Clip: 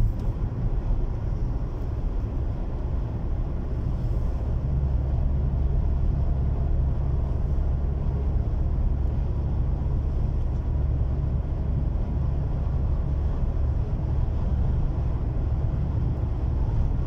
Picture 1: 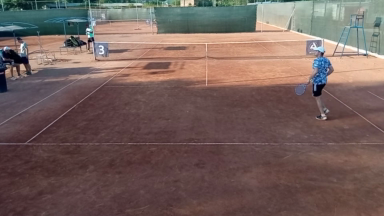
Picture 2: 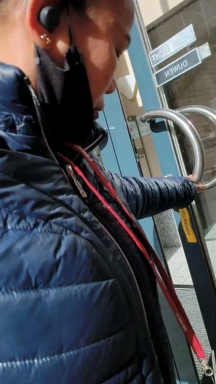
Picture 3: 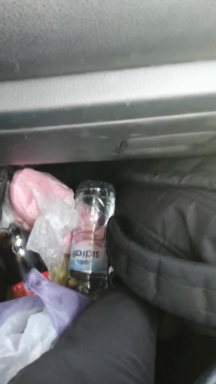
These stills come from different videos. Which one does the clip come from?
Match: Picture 3